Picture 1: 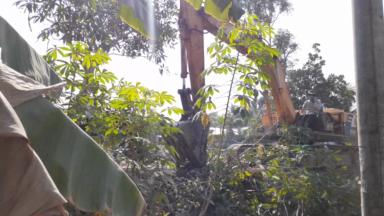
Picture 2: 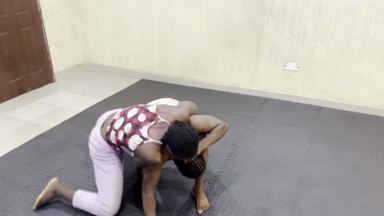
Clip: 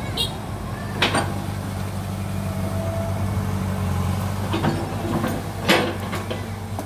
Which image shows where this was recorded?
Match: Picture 1